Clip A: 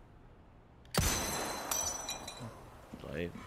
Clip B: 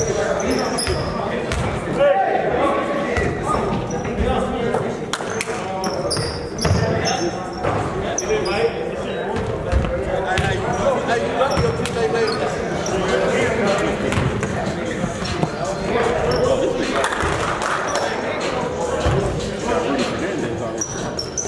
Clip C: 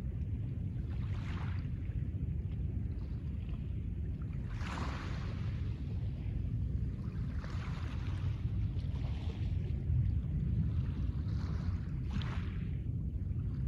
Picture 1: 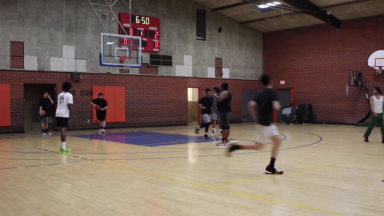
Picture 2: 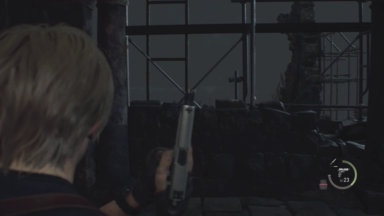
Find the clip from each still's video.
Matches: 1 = B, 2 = A